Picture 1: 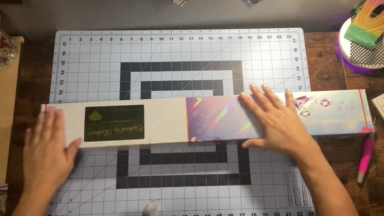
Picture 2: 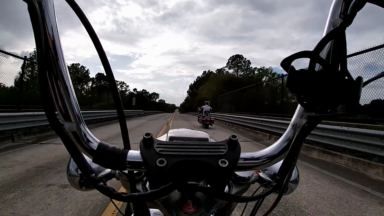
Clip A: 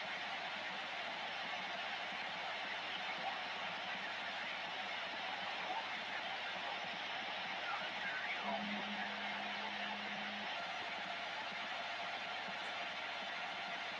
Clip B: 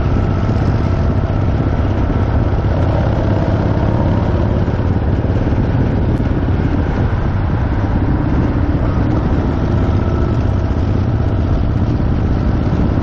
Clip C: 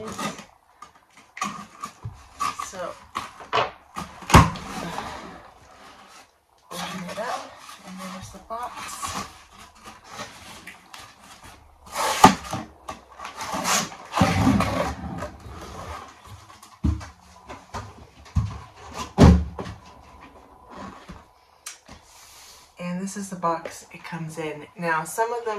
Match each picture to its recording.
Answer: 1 C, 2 B